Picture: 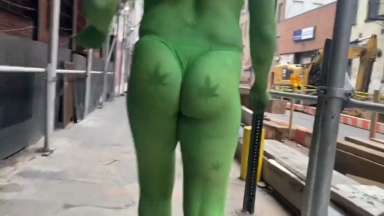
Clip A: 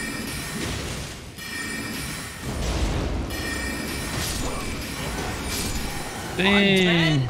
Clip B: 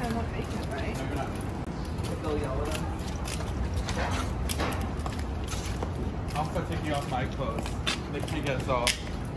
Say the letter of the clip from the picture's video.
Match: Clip B